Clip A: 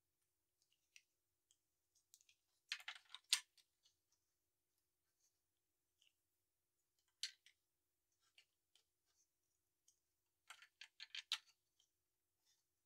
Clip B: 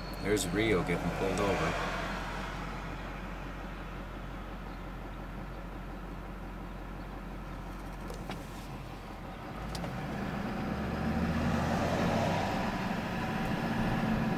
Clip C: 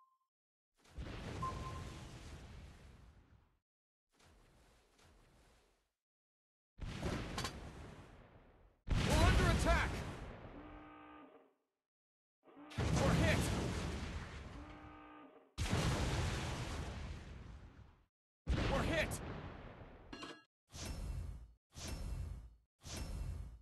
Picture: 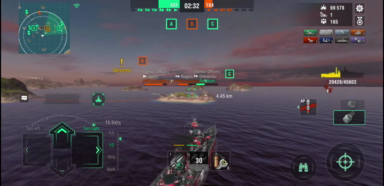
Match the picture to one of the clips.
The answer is C